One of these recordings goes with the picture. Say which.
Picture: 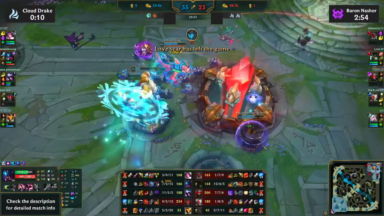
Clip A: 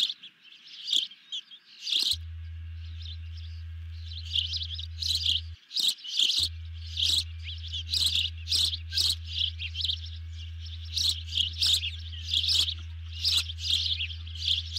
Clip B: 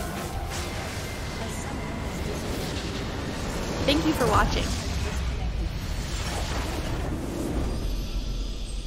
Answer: B